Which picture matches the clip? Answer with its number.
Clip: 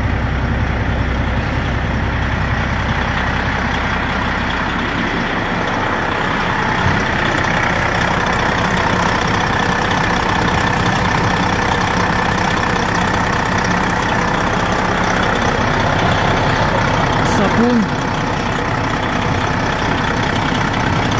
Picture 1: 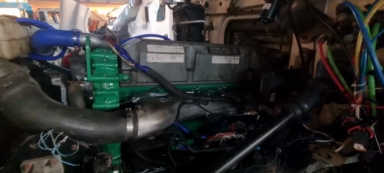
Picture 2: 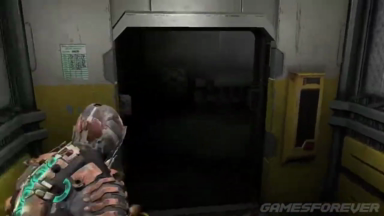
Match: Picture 1